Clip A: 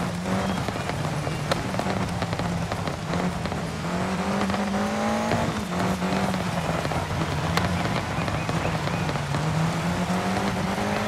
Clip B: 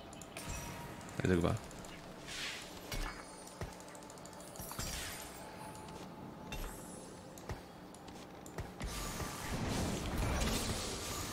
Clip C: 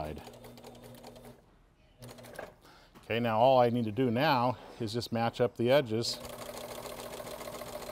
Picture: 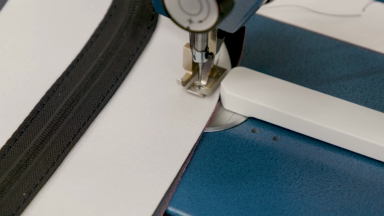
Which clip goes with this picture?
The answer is C